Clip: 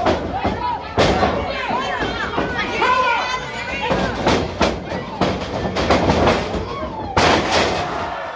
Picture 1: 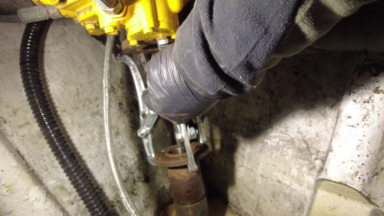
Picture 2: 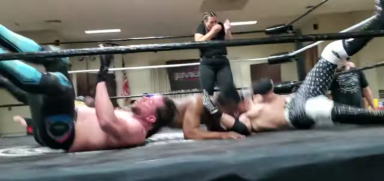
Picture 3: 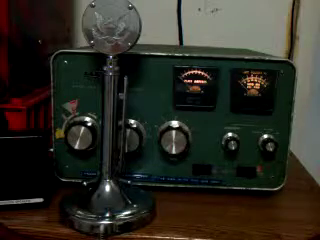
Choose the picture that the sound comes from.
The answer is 2